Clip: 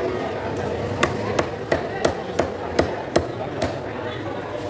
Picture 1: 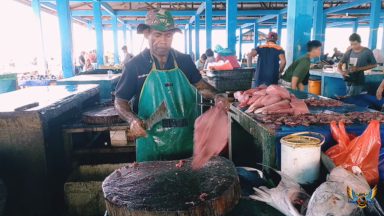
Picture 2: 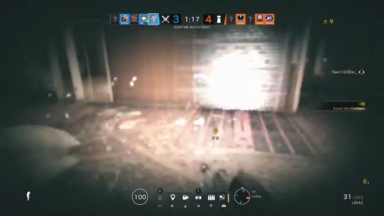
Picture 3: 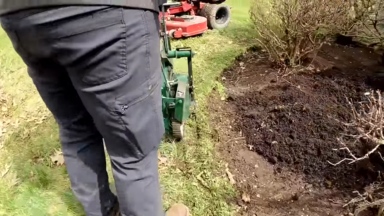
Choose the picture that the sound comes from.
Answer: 1